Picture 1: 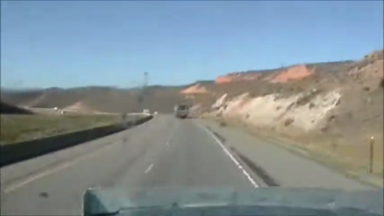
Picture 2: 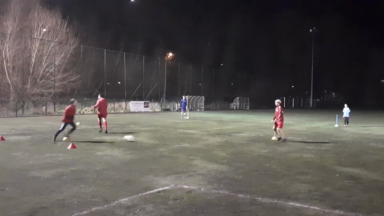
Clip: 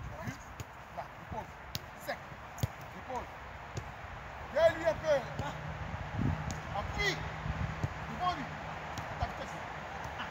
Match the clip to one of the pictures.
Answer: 2